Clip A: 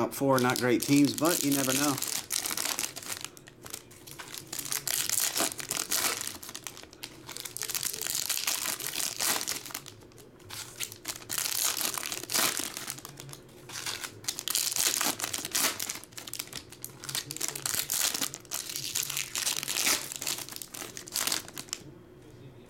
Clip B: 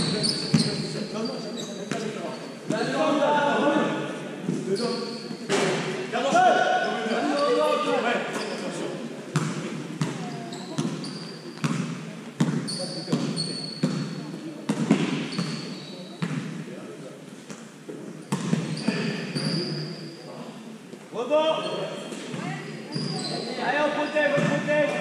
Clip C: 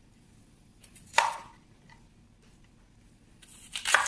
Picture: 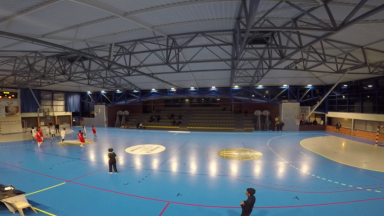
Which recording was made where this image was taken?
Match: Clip B